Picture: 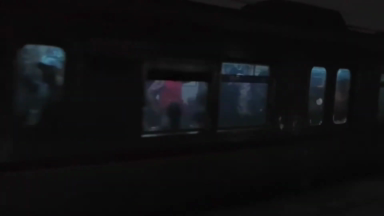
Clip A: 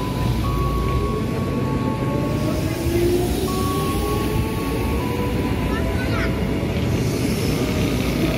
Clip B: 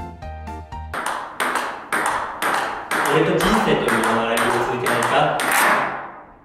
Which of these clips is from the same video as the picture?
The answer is A